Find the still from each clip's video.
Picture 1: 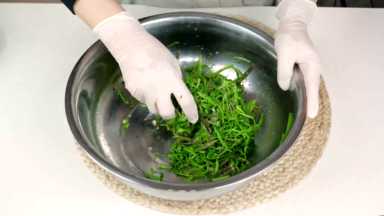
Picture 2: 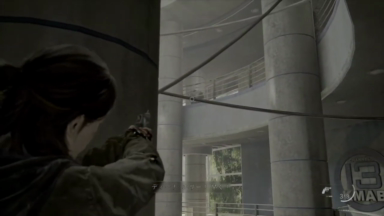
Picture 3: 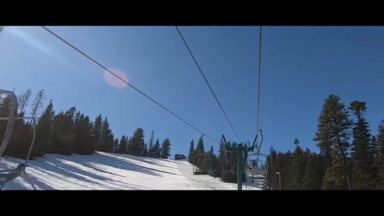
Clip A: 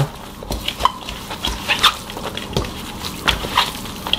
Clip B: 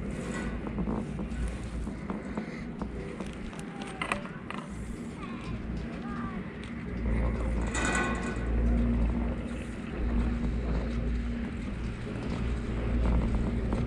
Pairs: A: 1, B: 3